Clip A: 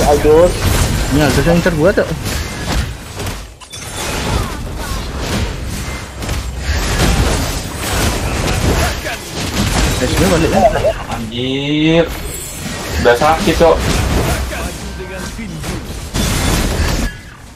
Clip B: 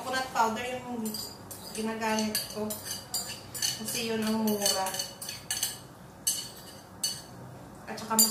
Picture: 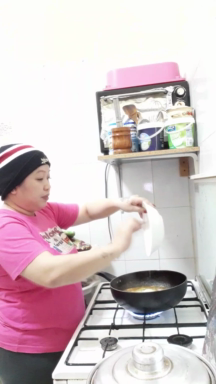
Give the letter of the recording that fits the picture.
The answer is B